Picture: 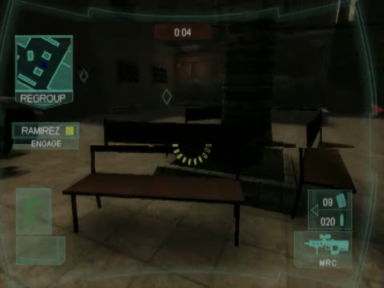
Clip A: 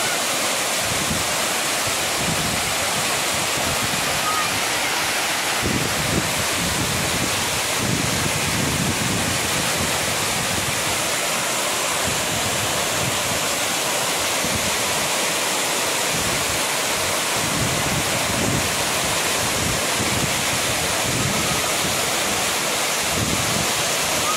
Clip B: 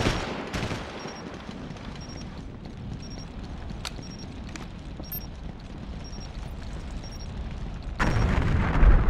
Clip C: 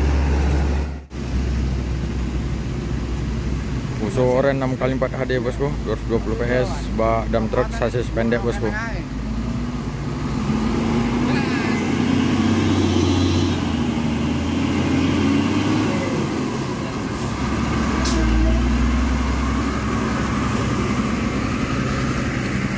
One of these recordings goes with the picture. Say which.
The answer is B